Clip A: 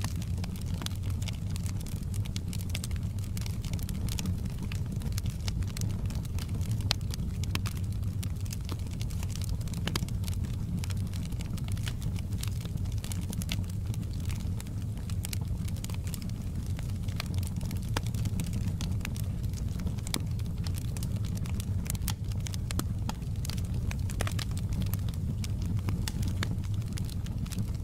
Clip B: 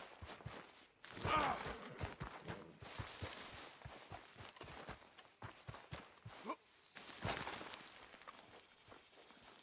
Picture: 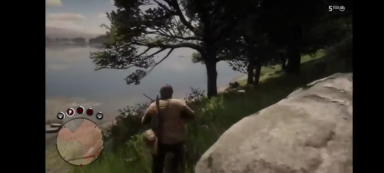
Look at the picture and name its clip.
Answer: B